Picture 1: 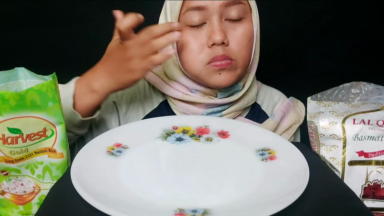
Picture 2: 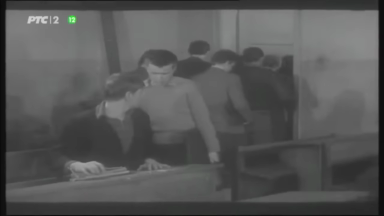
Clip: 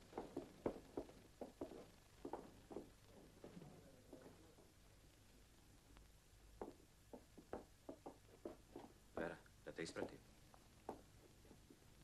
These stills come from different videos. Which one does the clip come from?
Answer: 2